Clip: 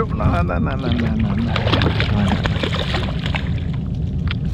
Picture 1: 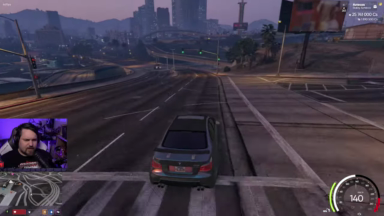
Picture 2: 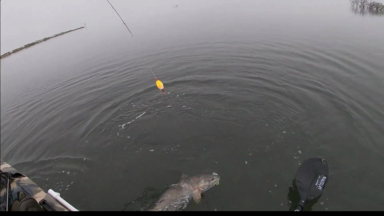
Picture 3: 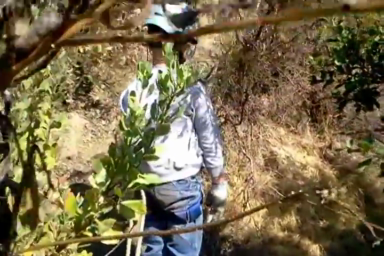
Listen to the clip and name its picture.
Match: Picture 2